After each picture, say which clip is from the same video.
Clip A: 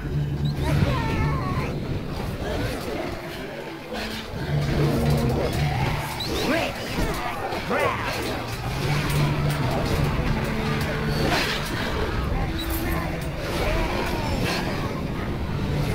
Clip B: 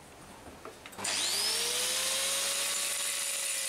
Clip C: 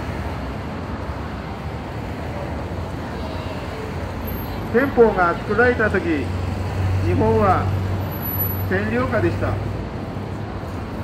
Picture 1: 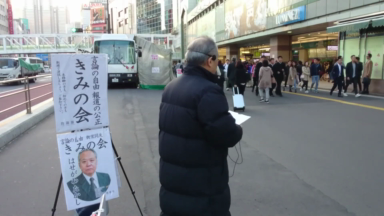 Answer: C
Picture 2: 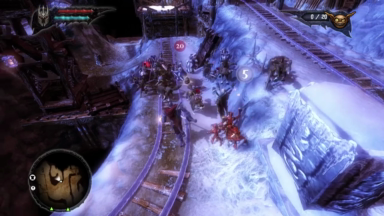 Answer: A